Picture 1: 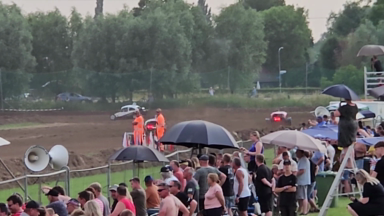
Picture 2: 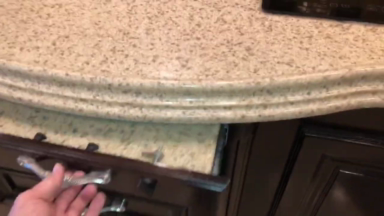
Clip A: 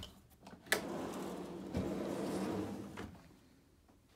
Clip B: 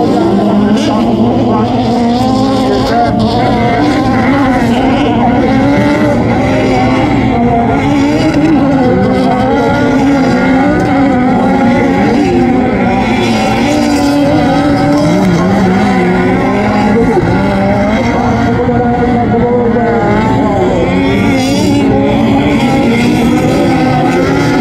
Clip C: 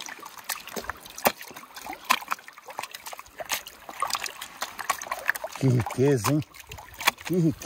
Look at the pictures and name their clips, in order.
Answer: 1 B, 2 A